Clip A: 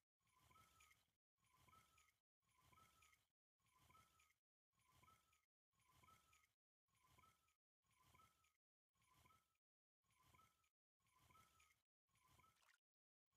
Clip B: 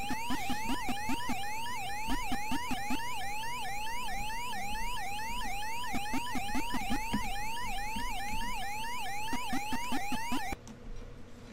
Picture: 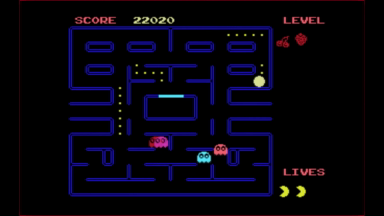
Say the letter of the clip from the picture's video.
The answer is B